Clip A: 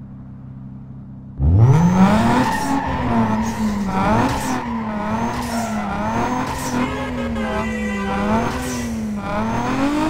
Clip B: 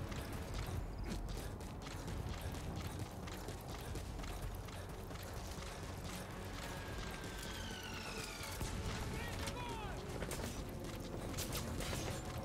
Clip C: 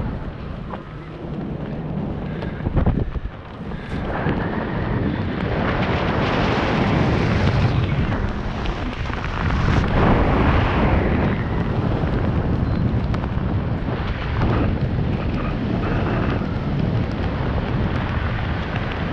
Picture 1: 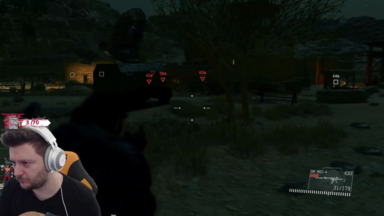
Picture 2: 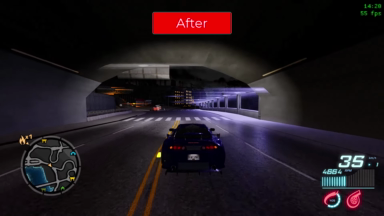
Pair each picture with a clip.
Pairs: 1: B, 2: A